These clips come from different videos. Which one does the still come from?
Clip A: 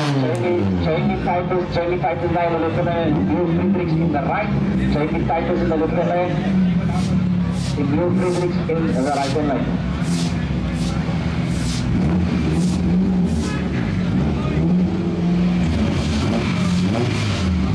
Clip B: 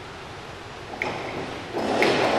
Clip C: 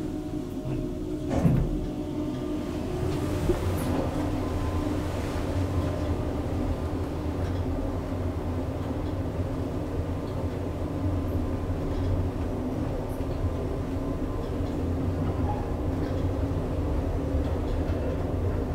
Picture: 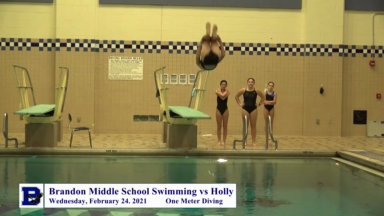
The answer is B